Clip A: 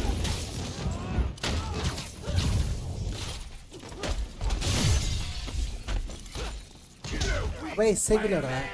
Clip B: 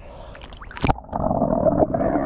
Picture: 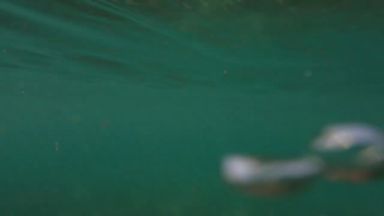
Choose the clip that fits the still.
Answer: B